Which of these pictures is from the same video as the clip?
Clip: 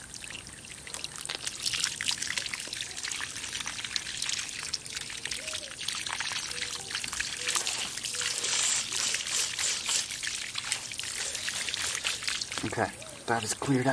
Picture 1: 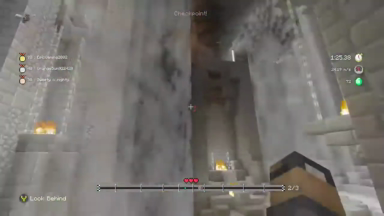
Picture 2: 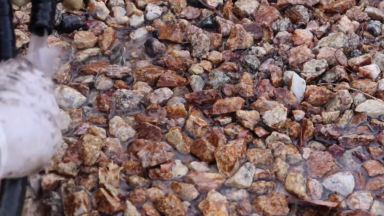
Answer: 2